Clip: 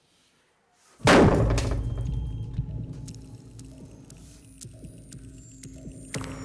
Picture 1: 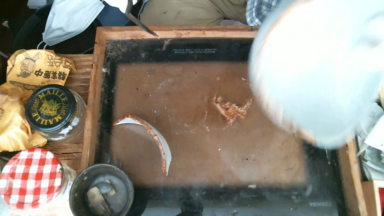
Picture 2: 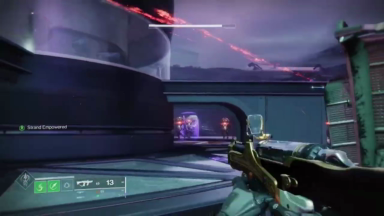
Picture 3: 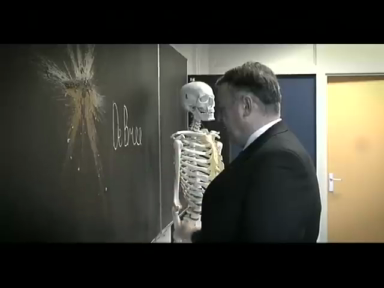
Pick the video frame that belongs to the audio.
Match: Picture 3